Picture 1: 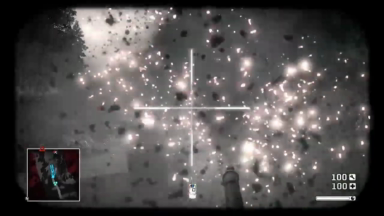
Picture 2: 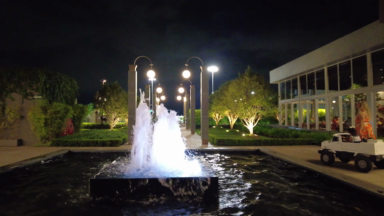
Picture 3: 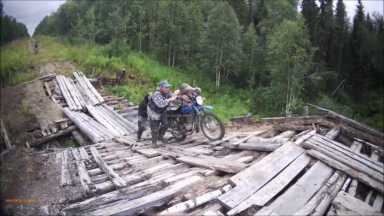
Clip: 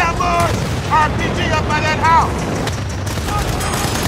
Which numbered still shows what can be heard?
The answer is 1